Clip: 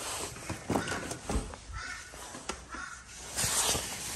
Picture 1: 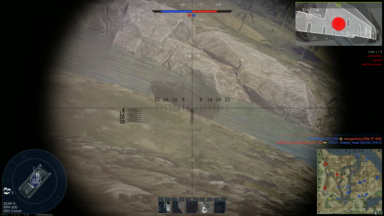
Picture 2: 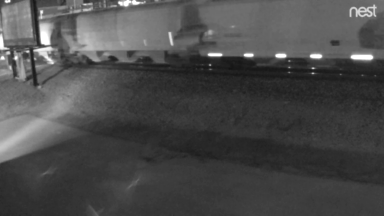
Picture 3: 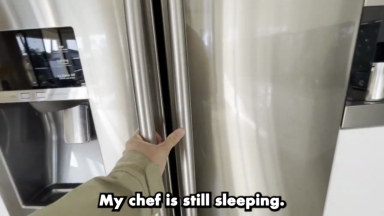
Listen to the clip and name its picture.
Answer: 3